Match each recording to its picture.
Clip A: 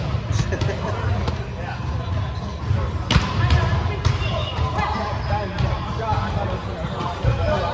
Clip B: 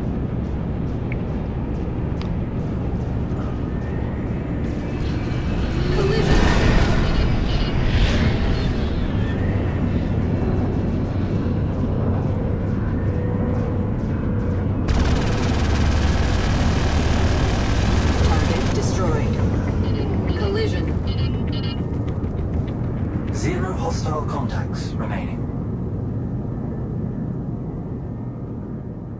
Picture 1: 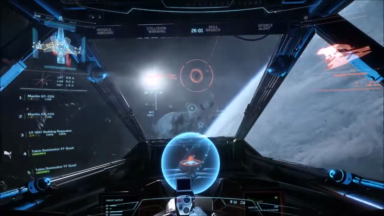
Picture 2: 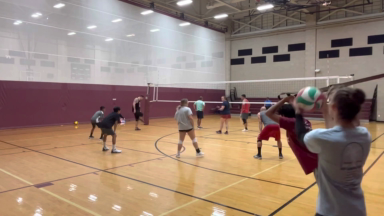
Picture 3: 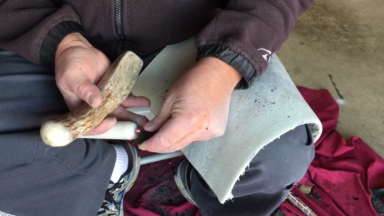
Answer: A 2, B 1